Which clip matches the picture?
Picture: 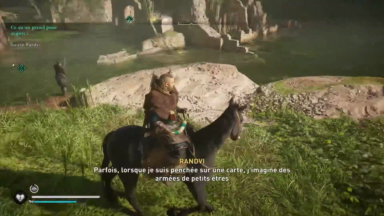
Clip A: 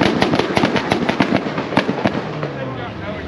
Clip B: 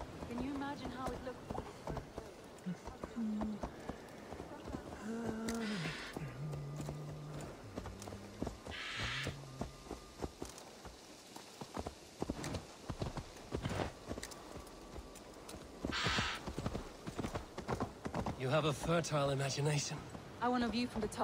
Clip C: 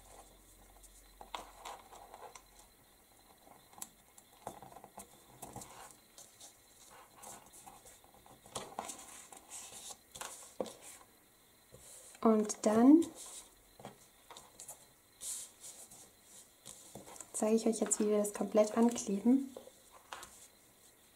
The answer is B